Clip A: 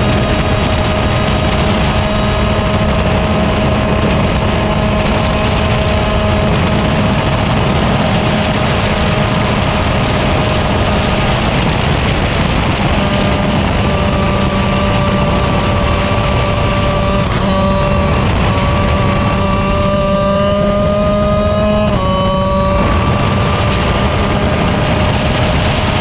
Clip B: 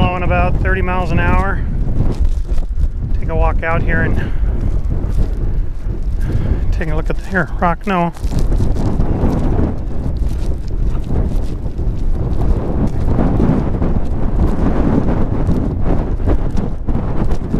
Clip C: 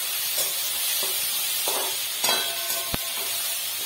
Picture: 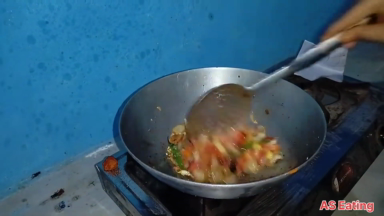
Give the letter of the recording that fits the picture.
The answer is C